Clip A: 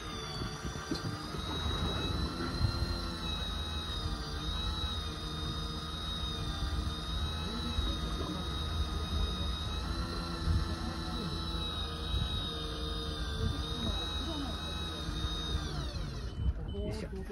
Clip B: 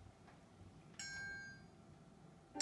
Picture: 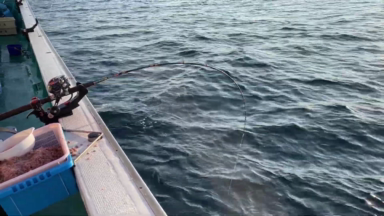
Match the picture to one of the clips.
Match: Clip A